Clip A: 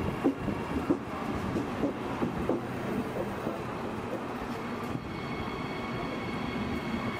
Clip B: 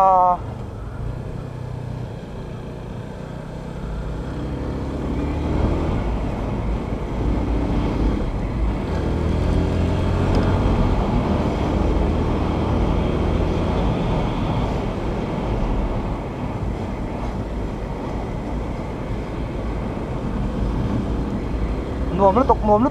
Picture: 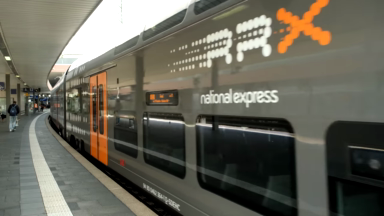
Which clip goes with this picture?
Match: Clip A